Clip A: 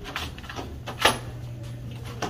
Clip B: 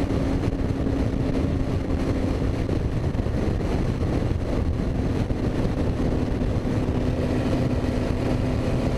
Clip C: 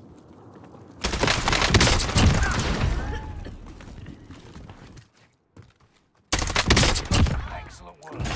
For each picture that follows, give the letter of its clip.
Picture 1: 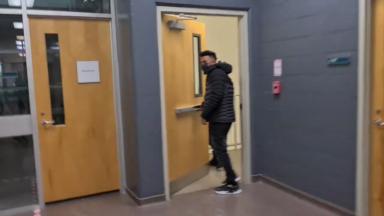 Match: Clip A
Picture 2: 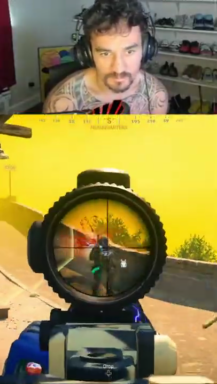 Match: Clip C